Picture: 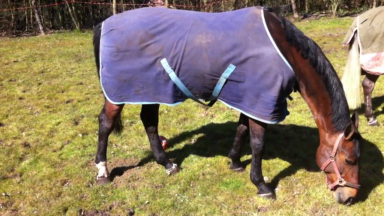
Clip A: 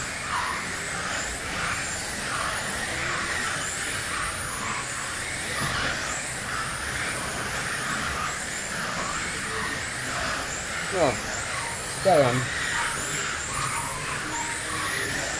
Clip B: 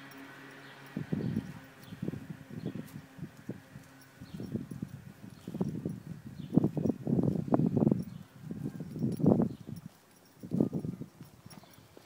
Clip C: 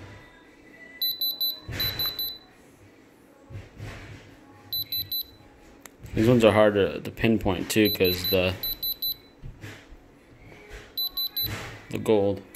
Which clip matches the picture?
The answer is B